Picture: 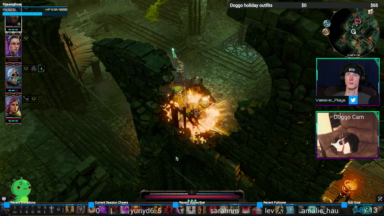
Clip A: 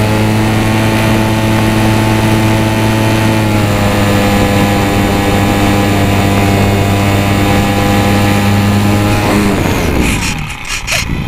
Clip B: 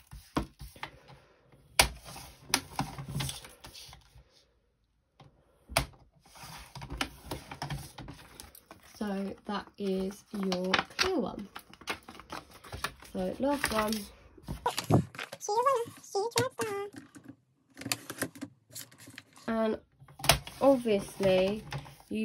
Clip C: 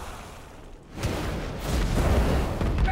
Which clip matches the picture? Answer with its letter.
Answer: C